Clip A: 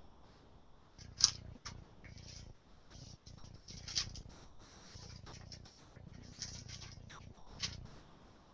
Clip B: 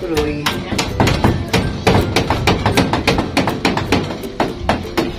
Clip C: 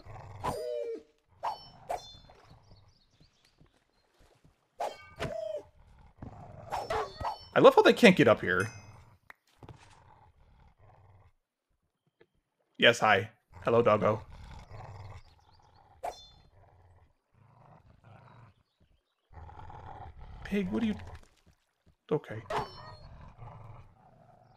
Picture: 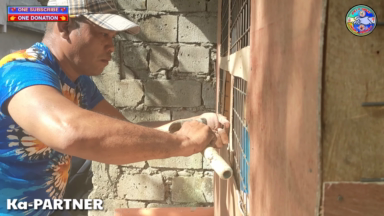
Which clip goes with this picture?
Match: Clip B